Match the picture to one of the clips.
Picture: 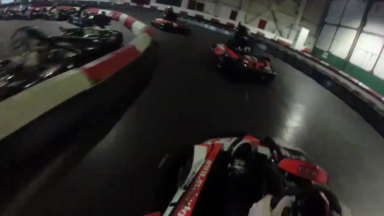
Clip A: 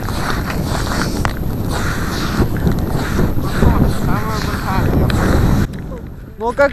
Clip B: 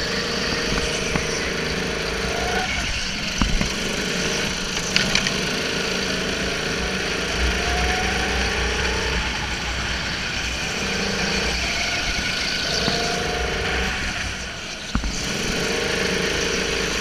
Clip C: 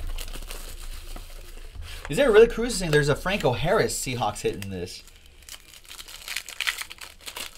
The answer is B